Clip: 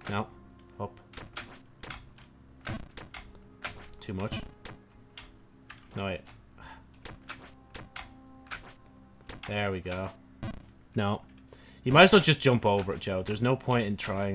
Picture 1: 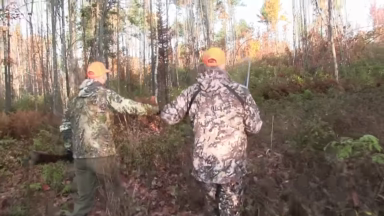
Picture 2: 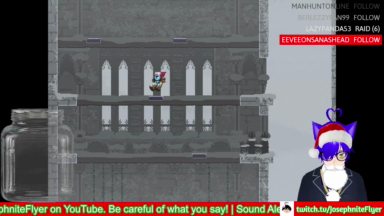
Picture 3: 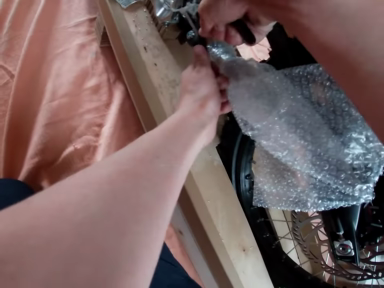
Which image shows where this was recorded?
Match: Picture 2